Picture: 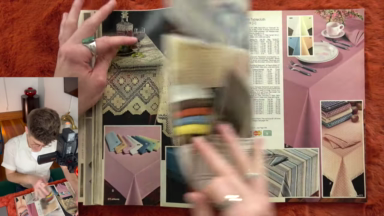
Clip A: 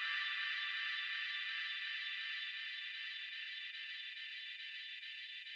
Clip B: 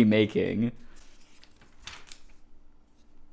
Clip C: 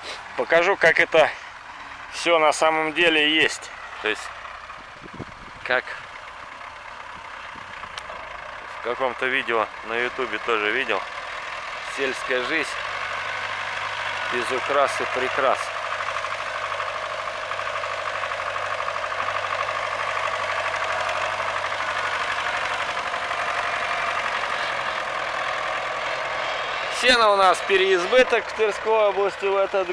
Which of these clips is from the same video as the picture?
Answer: B